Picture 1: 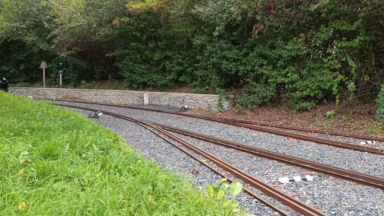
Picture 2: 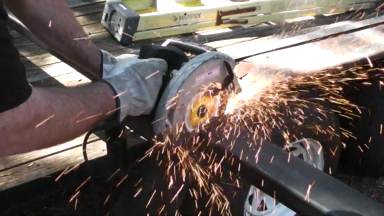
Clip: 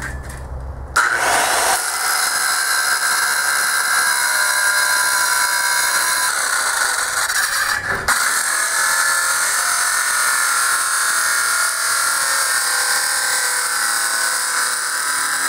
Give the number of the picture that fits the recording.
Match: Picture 2